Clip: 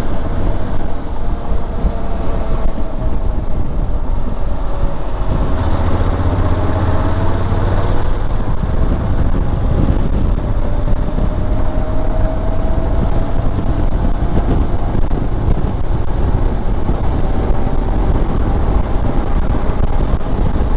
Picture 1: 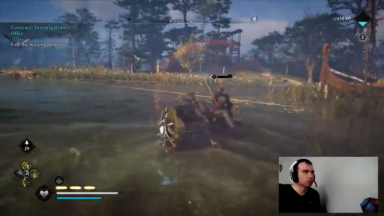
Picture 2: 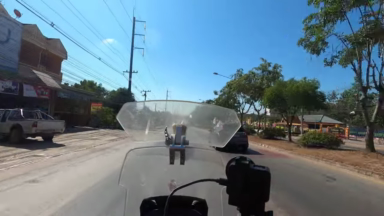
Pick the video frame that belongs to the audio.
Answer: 2